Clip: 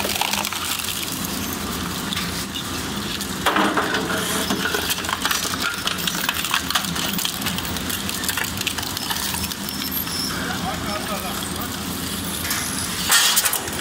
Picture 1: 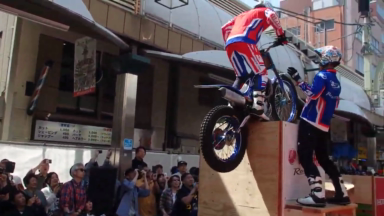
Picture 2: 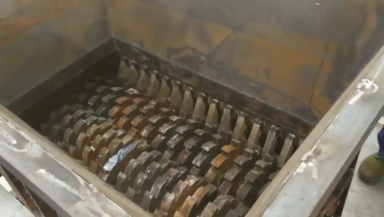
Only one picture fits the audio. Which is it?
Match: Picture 2